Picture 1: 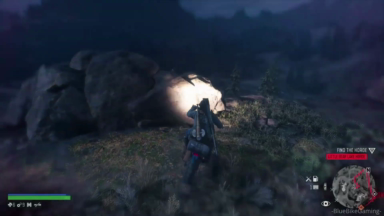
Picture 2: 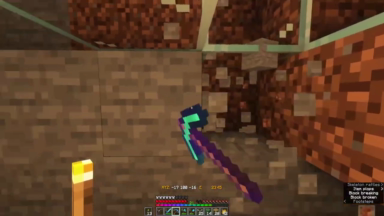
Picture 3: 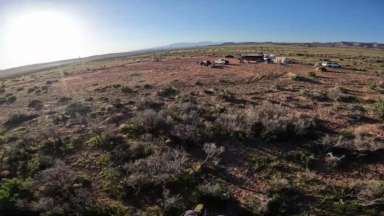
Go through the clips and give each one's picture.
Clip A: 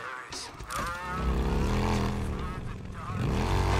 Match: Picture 1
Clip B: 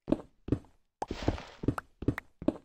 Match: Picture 2